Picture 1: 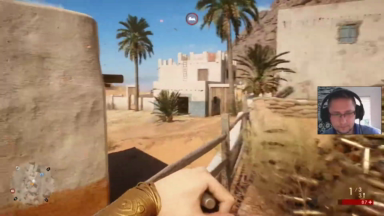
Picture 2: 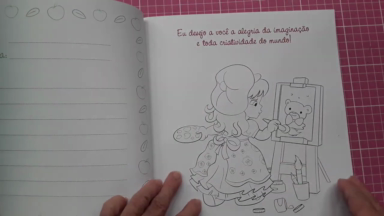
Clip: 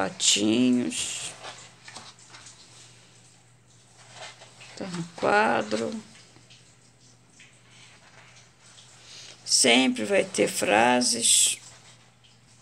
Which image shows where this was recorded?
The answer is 2